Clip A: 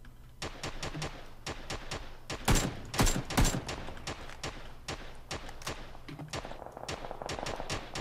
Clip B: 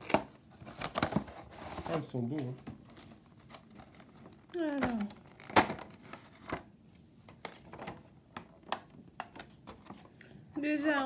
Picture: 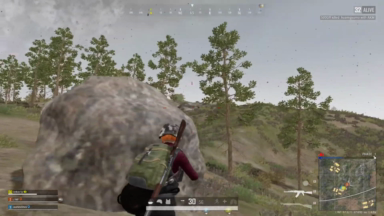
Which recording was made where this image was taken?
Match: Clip A